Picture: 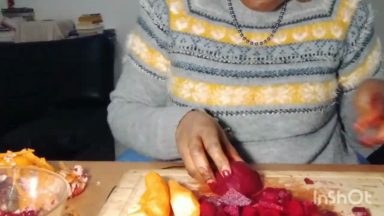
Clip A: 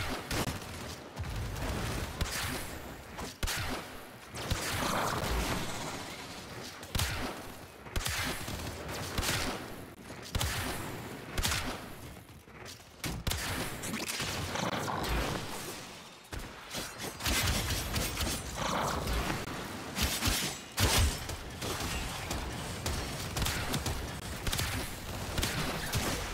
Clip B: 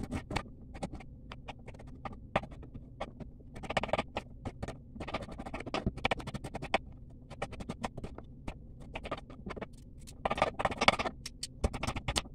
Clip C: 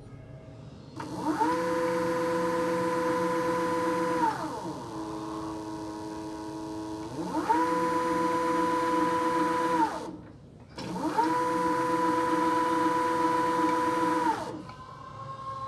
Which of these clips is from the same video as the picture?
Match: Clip B